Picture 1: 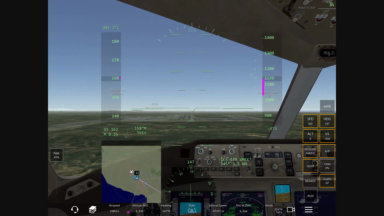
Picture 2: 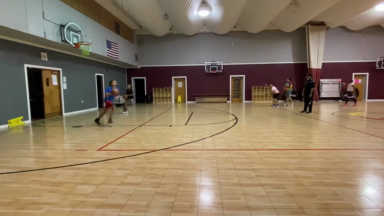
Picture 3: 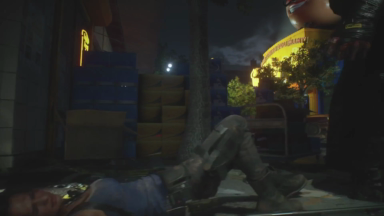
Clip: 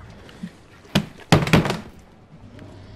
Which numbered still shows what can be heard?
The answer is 3